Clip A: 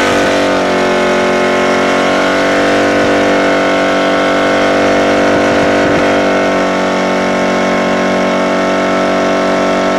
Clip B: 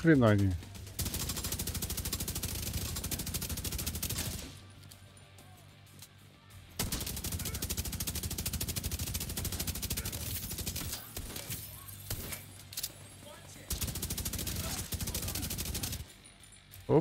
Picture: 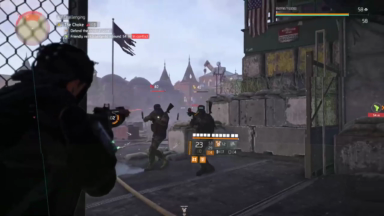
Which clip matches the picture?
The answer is B